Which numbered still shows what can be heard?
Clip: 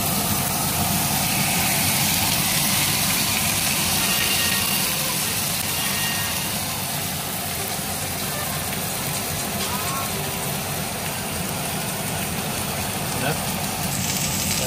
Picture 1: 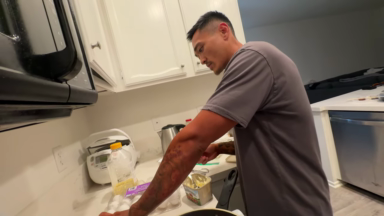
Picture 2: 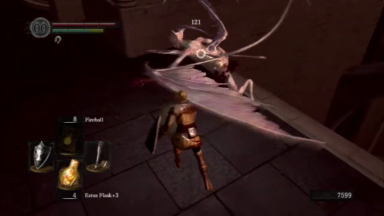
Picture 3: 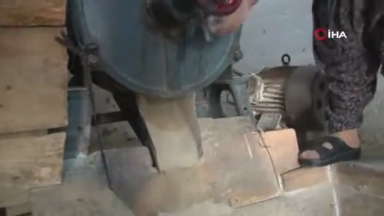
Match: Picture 1